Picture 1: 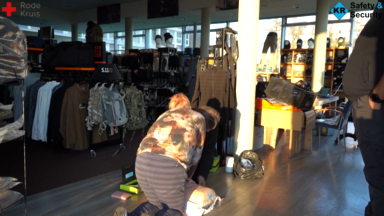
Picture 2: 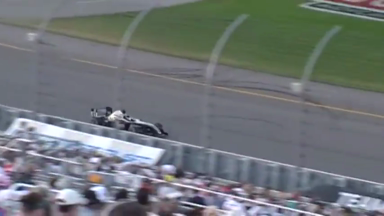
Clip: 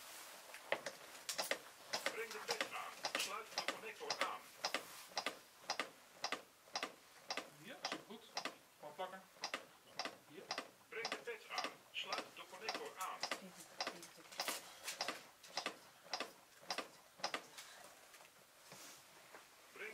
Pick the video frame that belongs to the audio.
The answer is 1